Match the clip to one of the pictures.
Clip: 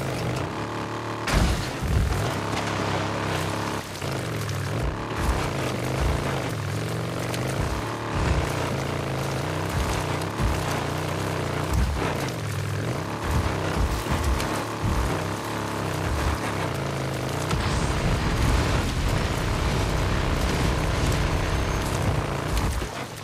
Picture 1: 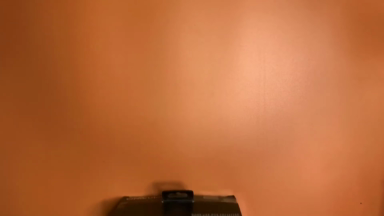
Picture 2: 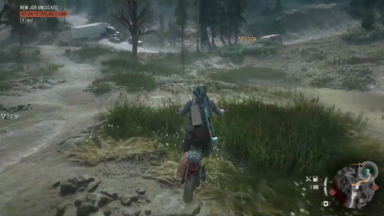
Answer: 2